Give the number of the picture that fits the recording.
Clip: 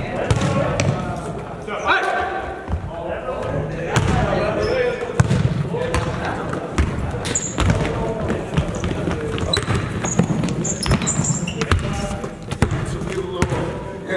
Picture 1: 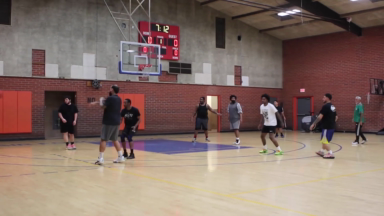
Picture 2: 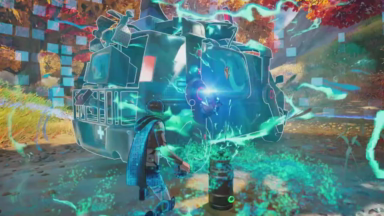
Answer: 1